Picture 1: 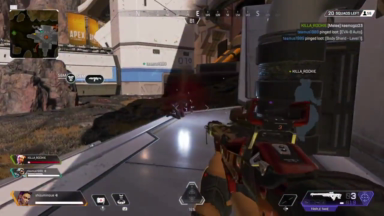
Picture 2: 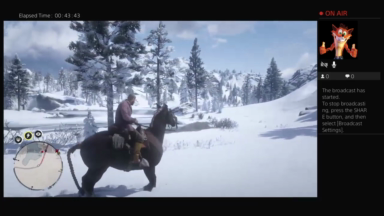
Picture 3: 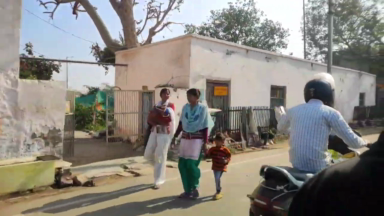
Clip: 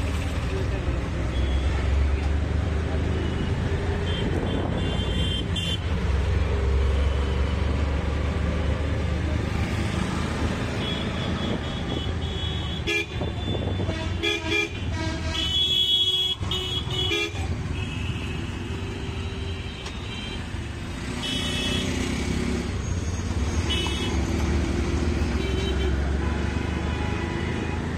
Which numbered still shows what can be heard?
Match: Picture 3